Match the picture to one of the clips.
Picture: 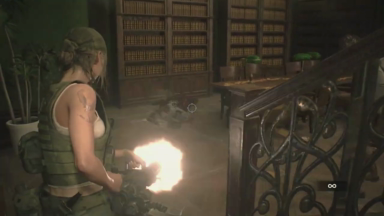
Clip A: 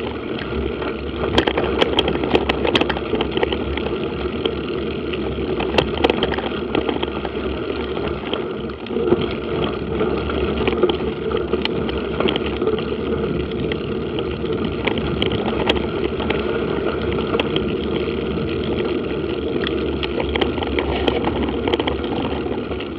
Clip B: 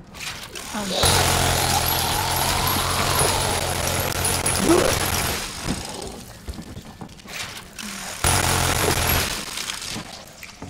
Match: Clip B